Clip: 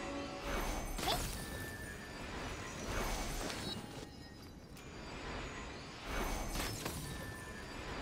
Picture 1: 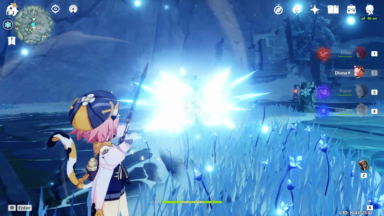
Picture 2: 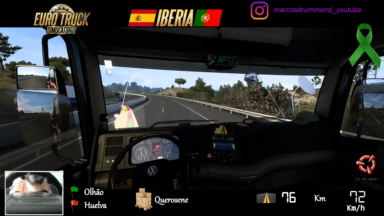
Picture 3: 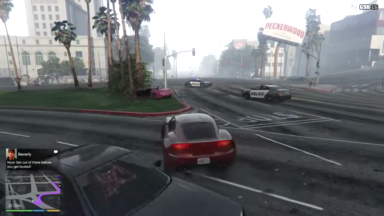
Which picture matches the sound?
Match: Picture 1